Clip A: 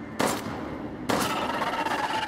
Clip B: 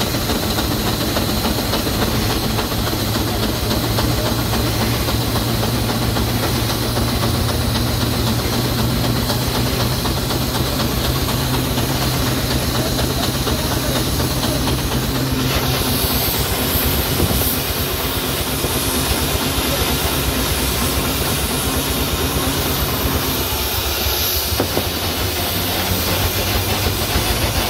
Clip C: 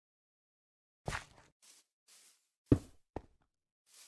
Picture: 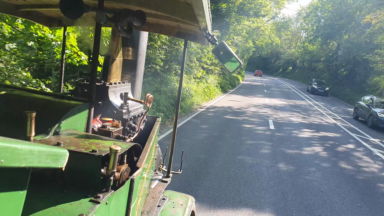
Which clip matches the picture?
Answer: B